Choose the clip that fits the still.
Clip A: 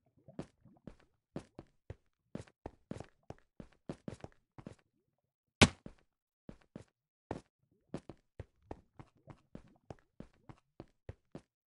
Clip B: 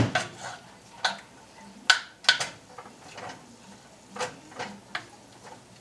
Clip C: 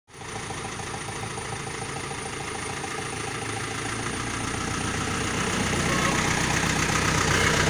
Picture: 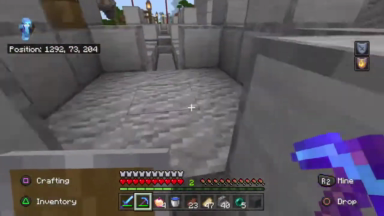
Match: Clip A